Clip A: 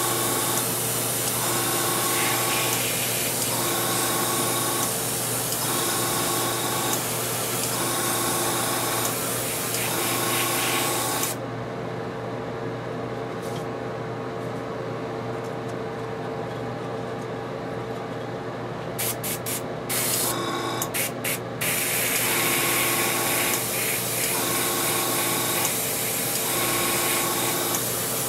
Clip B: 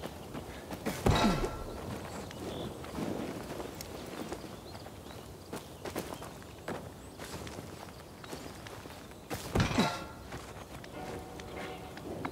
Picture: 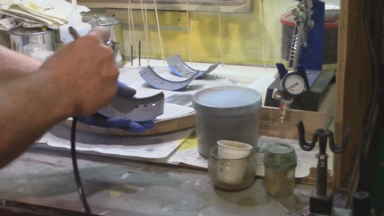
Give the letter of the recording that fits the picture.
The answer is A